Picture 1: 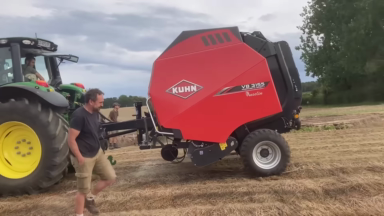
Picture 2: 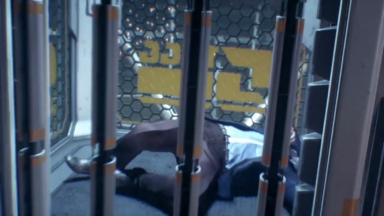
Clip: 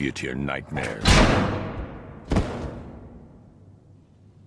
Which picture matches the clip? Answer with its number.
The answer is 2